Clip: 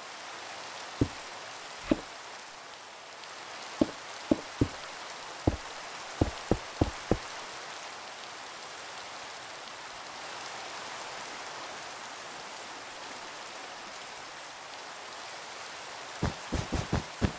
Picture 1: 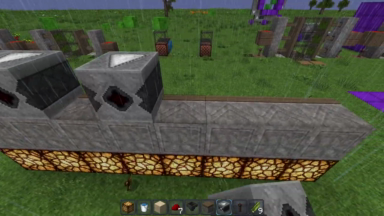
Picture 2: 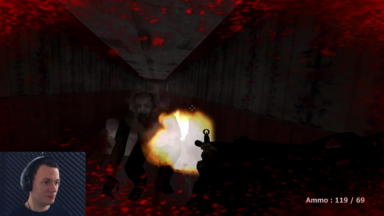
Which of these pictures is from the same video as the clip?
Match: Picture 1